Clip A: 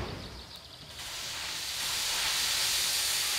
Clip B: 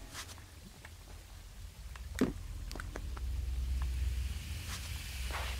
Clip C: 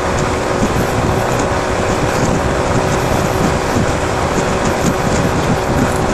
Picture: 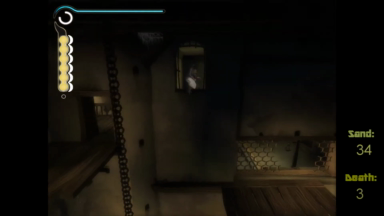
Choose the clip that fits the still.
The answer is B